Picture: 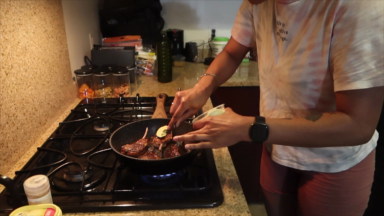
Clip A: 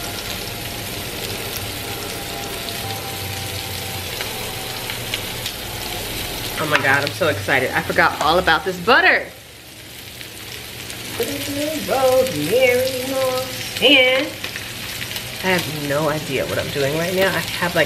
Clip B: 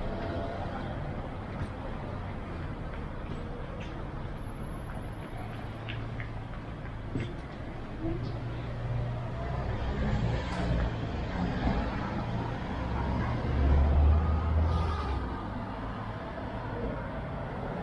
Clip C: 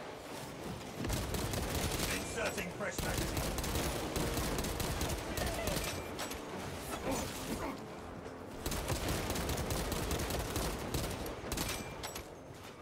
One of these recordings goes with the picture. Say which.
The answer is A